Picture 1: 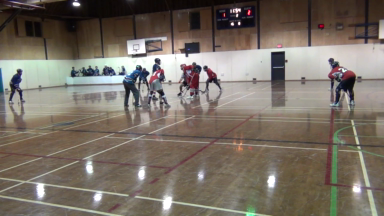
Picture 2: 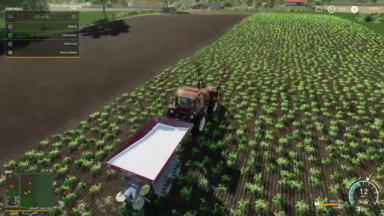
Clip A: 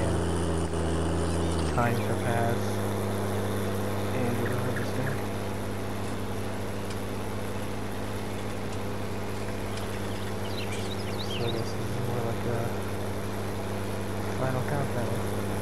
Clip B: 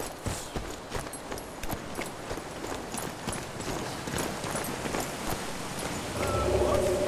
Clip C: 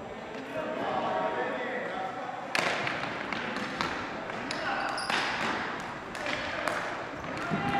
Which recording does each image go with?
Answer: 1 C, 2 A